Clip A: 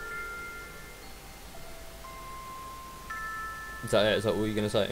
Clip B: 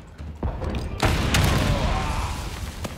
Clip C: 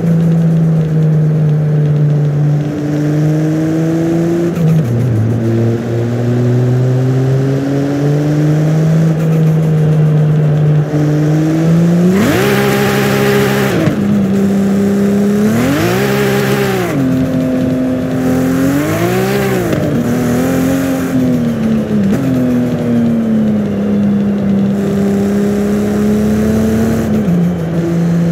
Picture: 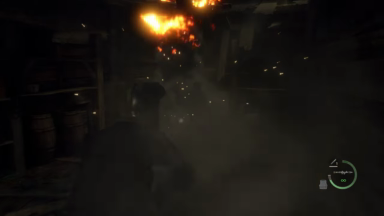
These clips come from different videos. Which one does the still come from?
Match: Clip B